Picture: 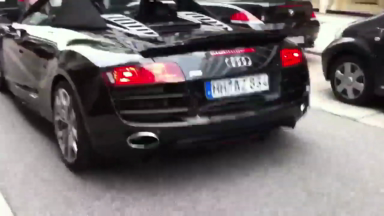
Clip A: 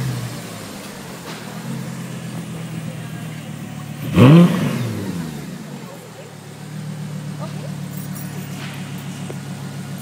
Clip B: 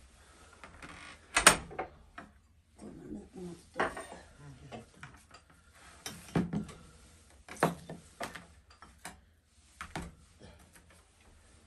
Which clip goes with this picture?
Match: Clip A